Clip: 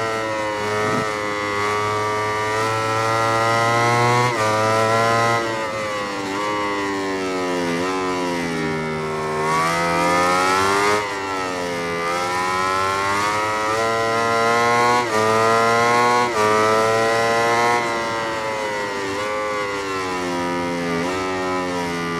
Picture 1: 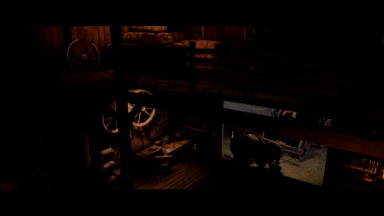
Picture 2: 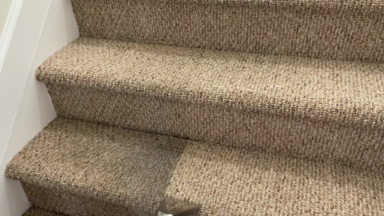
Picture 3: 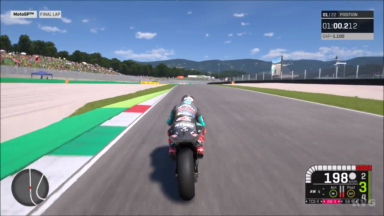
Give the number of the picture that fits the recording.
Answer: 3